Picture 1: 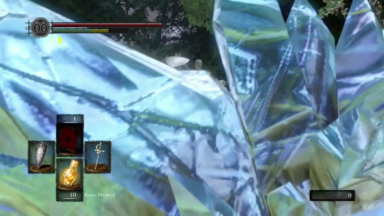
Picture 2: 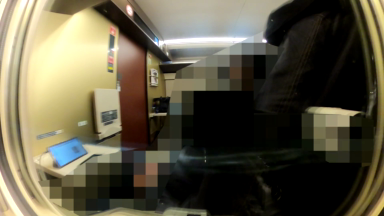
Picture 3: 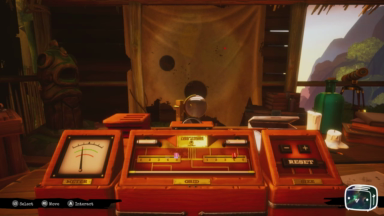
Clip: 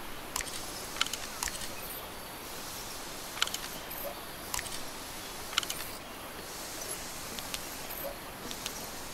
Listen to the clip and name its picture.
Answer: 3